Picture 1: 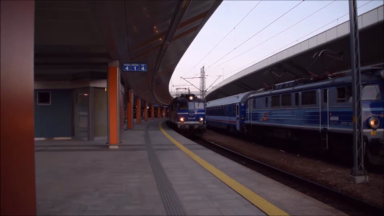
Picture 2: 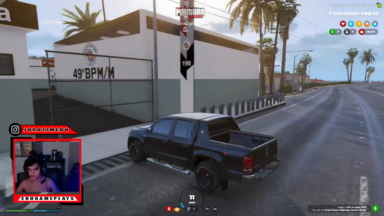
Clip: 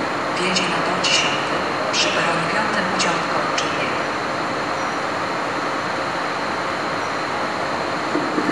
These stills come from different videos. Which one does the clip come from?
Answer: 1